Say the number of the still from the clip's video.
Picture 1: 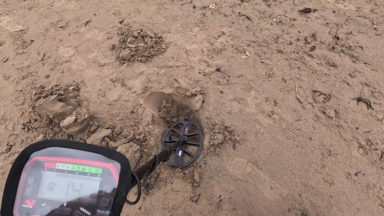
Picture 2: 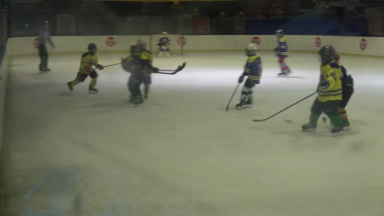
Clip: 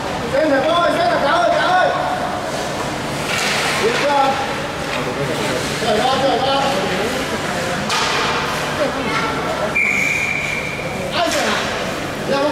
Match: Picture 2